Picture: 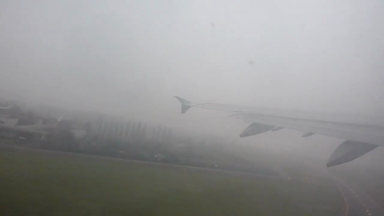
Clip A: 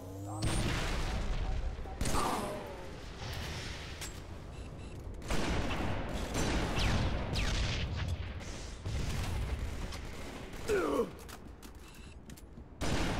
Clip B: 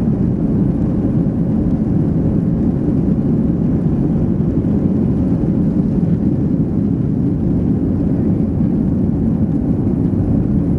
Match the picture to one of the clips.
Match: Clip B